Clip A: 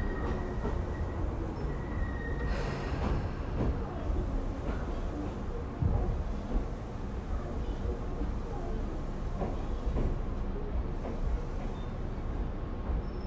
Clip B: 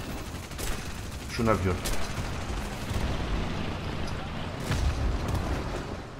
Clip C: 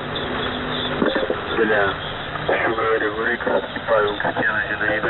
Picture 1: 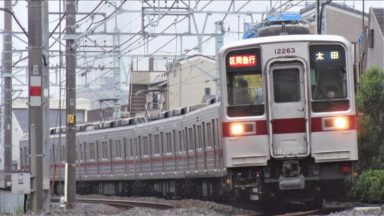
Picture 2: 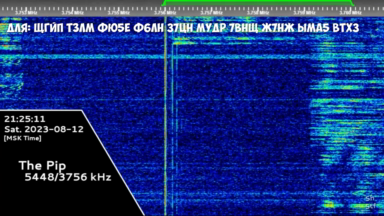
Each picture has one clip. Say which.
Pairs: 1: A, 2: C